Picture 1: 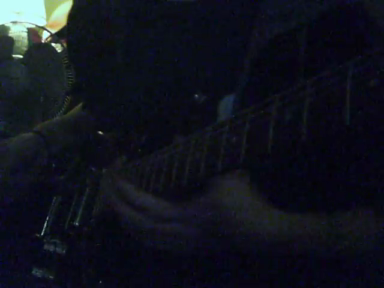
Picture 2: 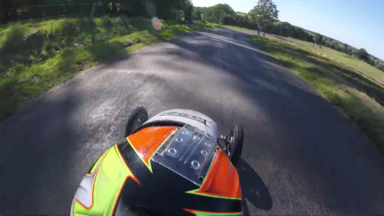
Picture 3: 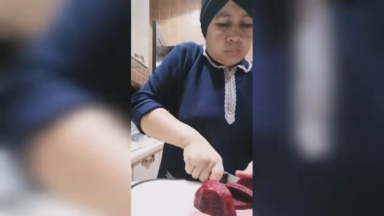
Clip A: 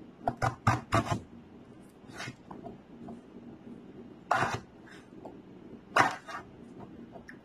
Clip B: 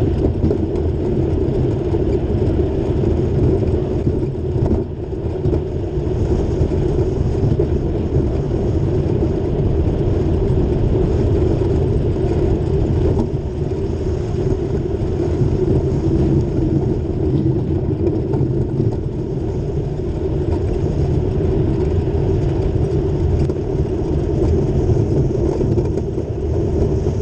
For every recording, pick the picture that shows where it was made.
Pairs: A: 3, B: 2